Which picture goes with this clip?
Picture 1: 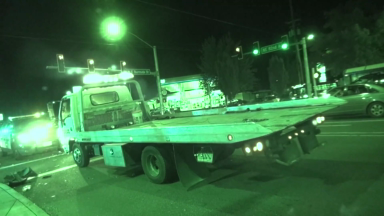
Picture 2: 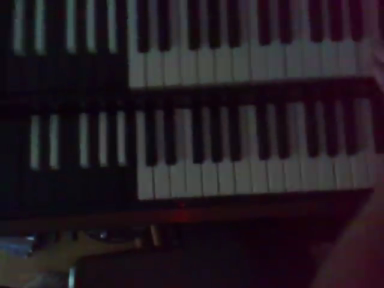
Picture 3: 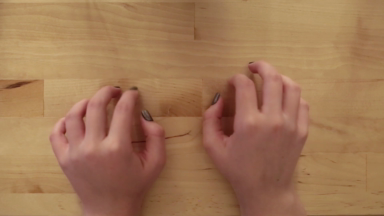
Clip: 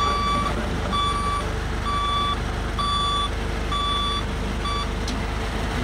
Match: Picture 1